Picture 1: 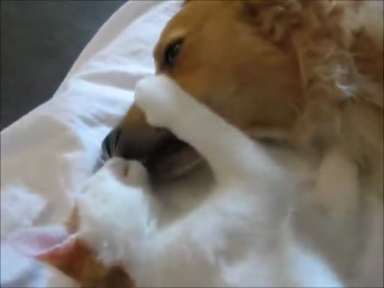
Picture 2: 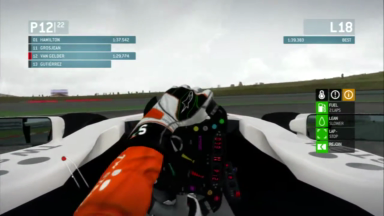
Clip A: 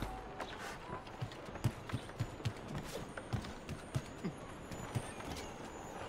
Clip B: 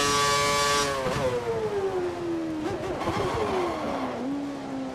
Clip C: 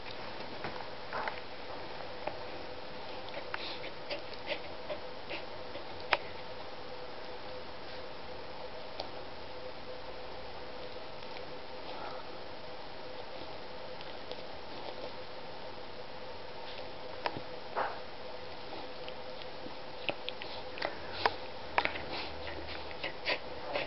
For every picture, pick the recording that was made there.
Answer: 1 C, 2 B